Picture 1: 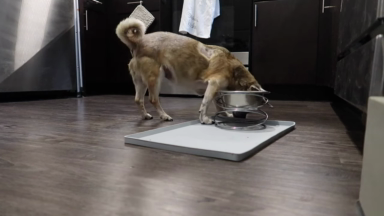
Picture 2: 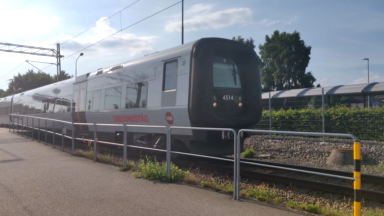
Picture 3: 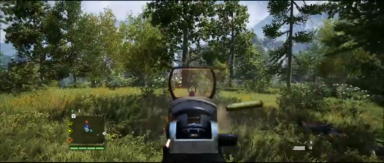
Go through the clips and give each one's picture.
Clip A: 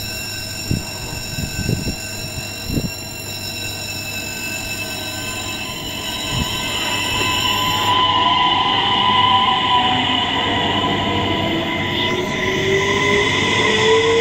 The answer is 2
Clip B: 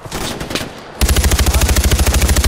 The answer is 3